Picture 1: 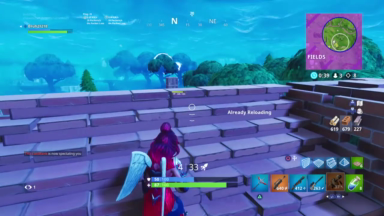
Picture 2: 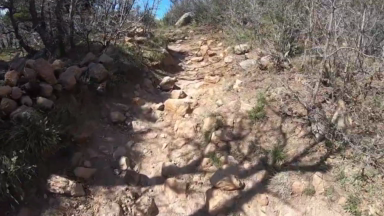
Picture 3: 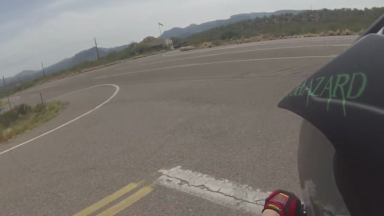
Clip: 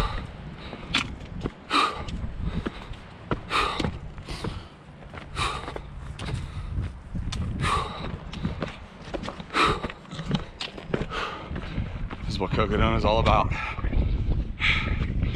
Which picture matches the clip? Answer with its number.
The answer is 2